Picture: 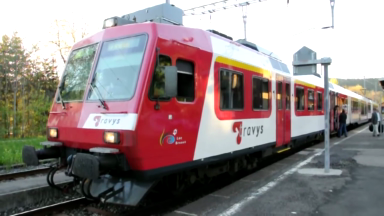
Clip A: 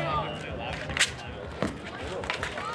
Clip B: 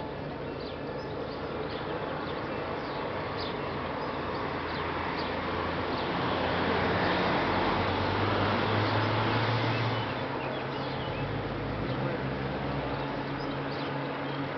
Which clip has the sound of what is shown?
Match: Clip B